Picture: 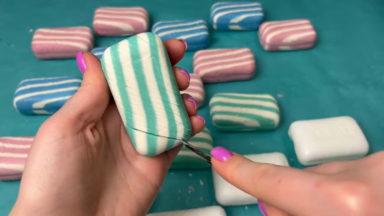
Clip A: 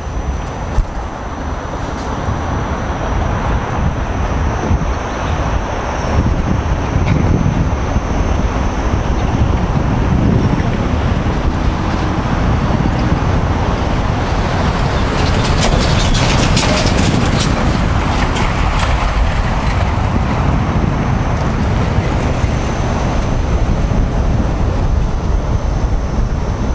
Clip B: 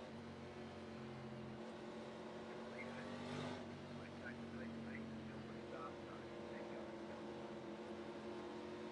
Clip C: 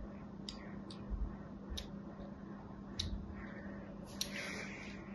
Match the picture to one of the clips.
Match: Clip C